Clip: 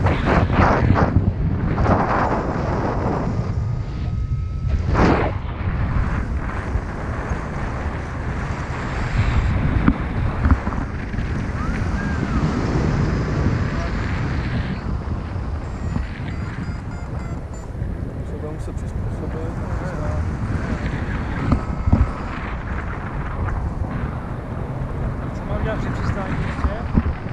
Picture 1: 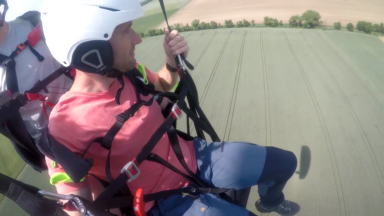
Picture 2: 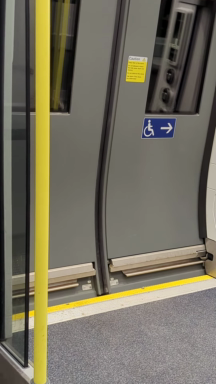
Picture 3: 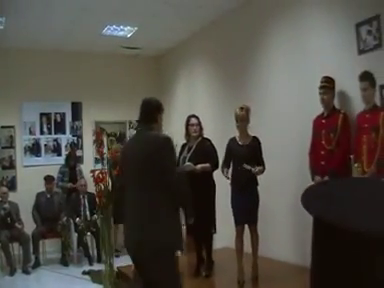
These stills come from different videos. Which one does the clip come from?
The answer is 1